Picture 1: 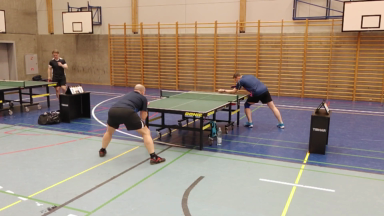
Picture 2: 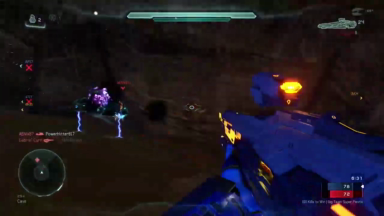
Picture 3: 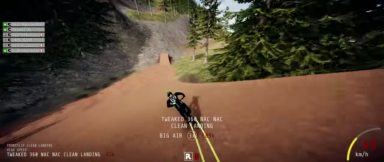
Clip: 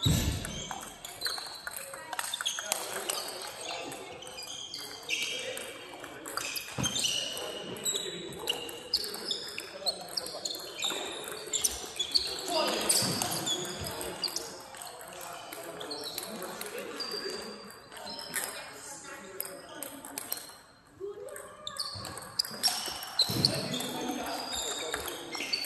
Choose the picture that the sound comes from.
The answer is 1